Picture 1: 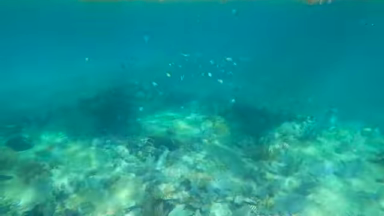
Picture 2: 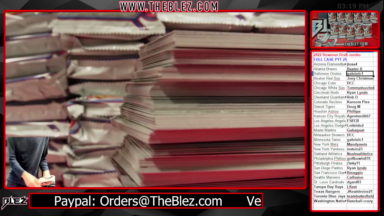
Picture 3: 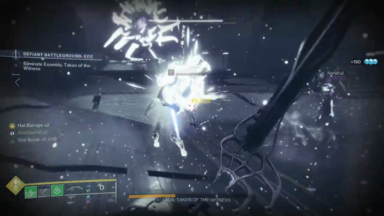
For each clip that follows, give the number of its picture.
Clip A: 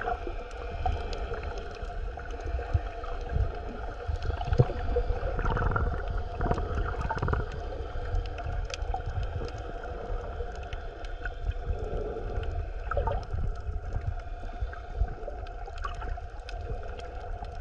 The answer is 1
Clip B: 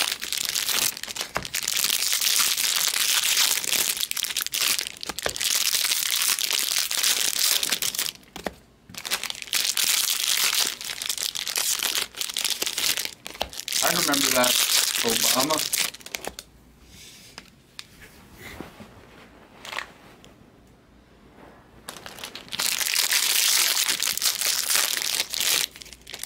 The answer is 2